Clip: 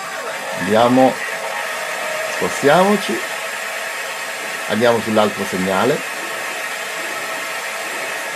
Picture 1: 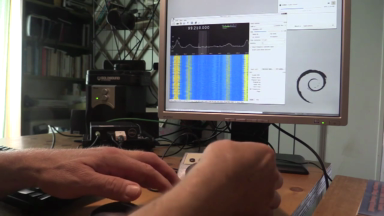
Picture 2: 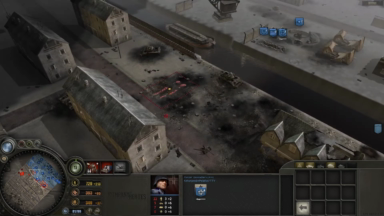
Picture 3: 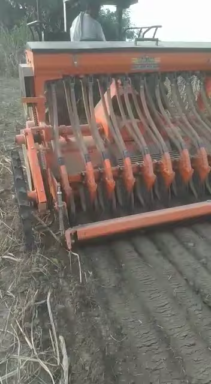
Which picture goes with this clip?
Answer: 1